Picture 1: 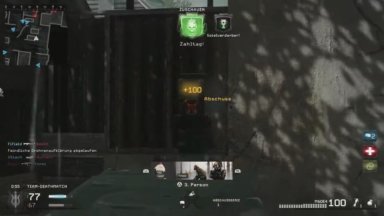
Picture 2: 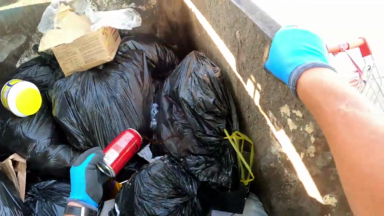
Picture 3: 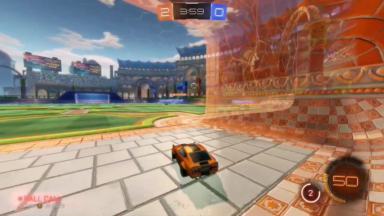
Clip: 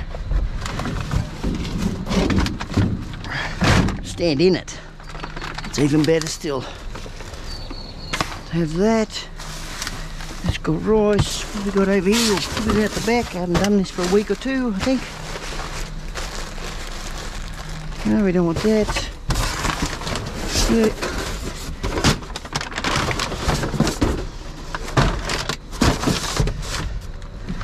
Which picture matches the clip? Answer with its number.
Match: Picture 2